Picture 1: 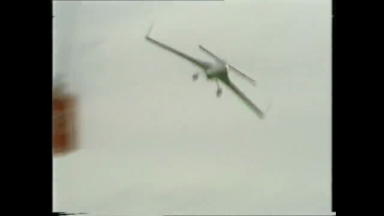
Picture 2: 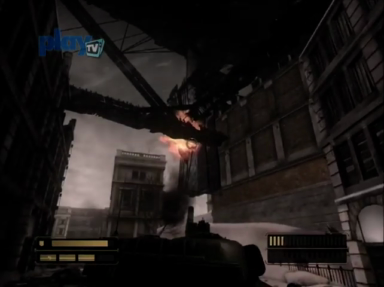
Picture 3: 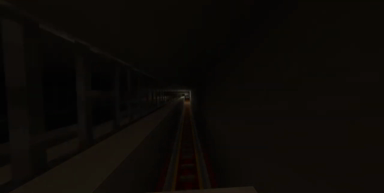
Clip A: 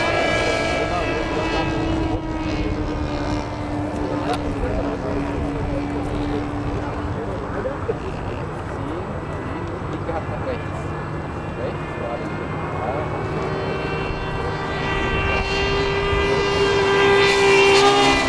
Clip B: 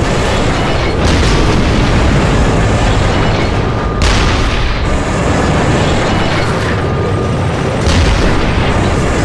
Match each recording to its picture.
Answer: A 1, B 2